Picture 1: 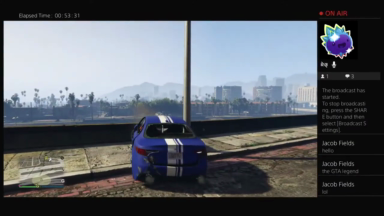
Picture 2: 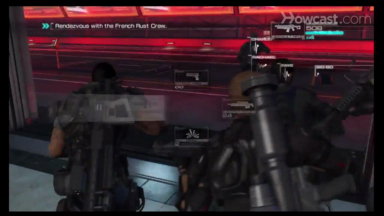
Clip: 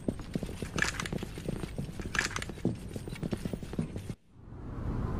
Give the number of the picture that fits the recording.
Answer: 2